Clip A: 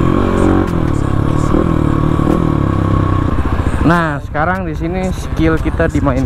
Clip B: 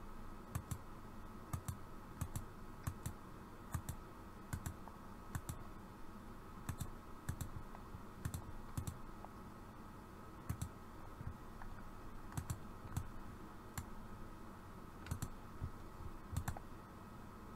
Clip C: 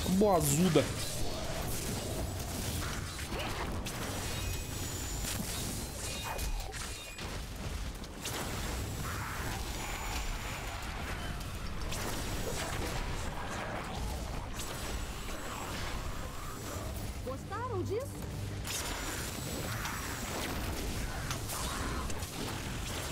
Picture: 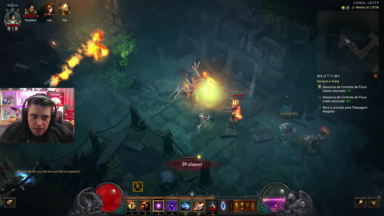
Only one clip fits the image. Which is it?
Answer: C